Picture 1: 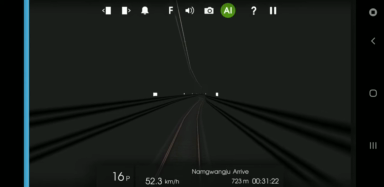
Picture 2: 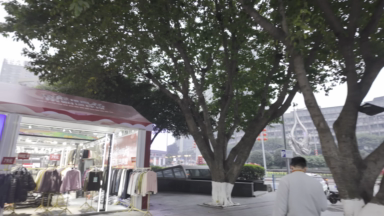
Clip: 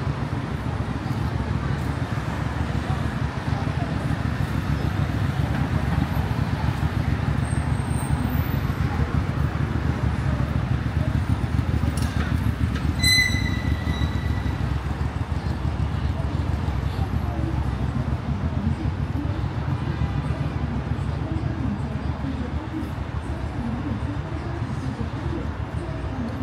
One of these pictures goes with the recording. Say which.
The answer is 2